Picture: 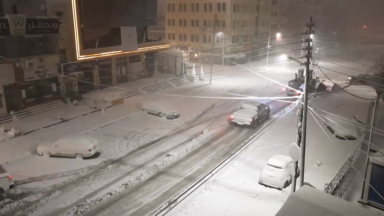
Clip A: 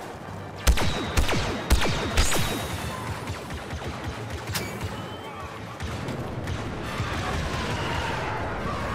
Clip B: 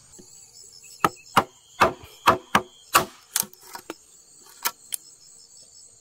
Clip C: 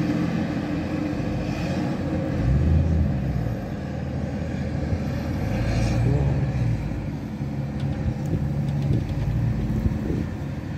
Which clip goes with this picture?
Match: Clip C